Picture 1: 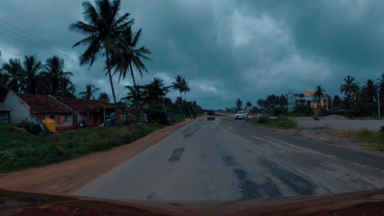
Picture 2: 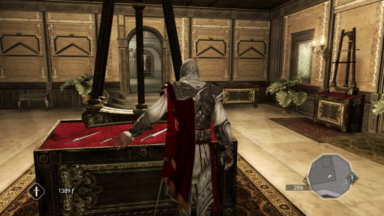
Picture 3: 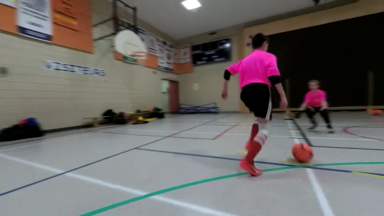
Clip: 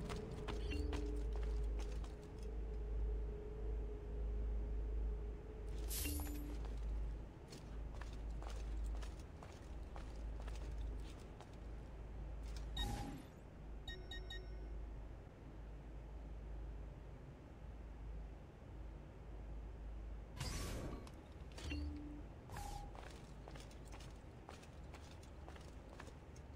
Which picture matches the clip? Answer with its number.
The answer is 2